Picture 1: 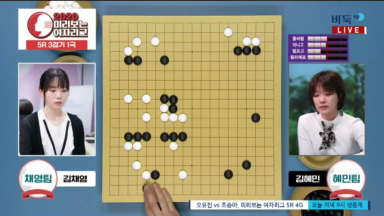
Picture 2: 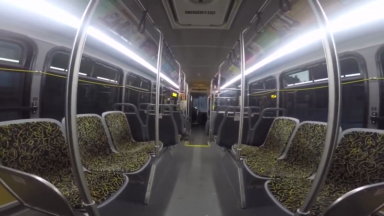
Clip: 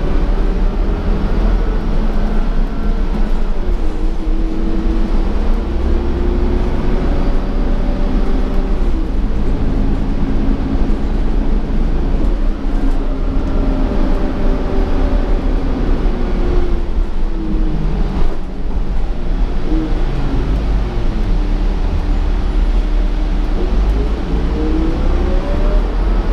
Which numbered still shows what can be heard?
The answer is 2